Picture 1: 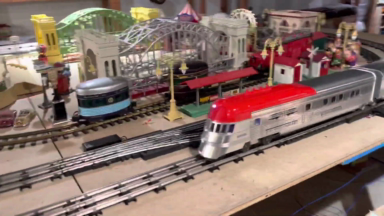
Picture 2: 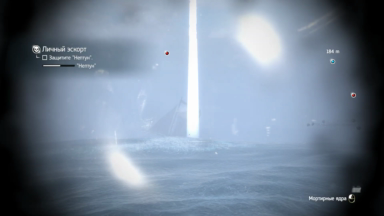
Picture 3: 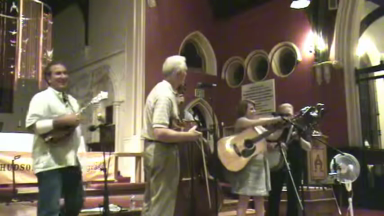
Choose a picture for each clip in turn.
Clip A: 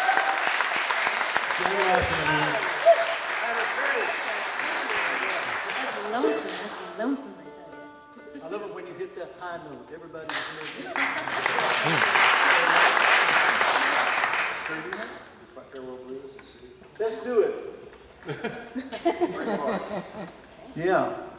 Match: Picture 3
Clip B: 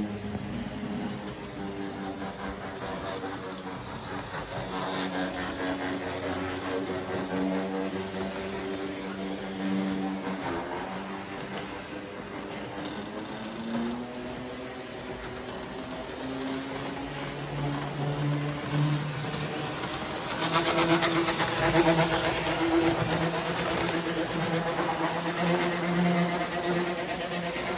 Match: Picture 1